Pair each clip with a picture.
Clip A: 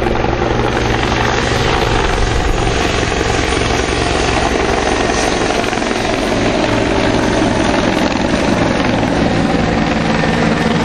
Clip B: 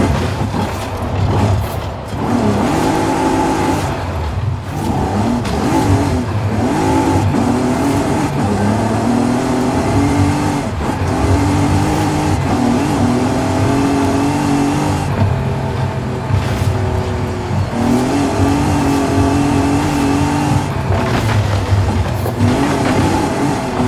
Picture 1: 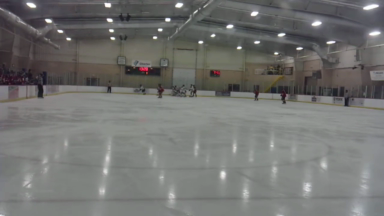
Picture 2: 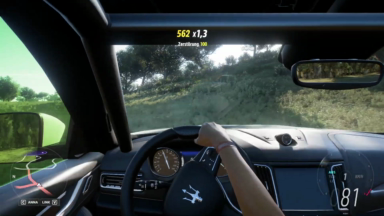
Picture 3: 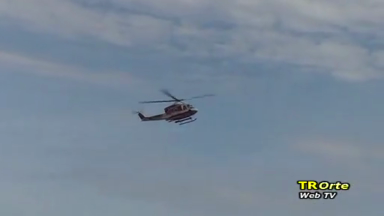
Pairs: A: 3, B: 2